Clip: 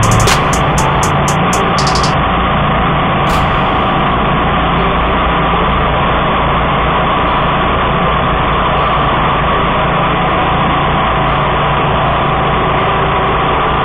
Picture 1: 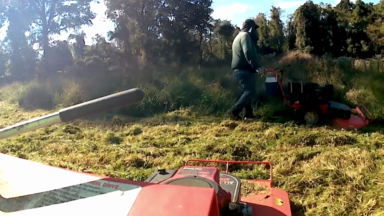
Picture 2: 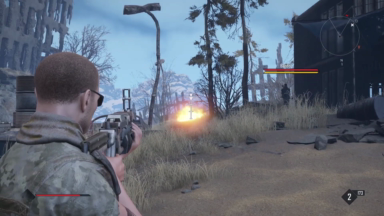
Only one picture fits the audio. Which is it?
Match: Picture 1